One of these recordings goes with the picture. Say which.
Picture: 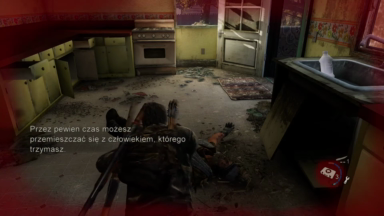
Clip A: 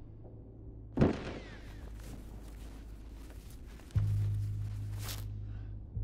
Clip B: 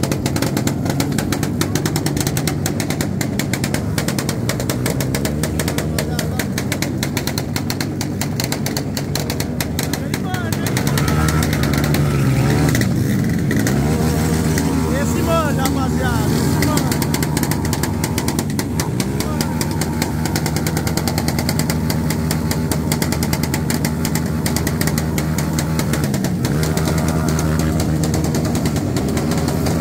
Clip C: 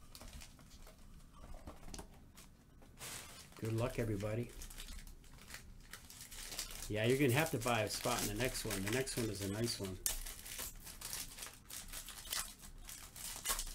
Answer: A